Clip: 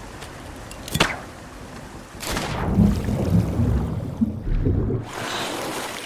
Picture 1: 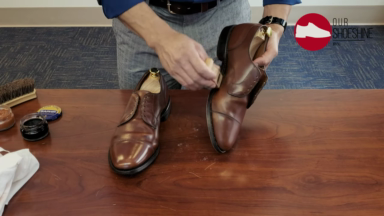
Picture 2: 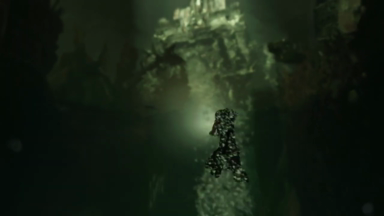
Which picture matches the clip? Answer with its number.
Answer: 2